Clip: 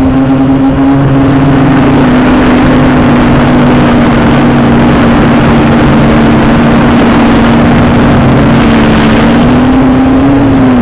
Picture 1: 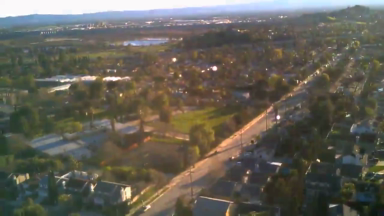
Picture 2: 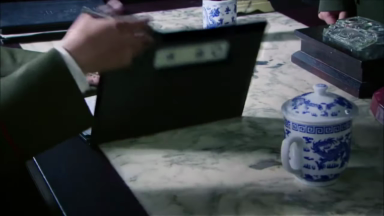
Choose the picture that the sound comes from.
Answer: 1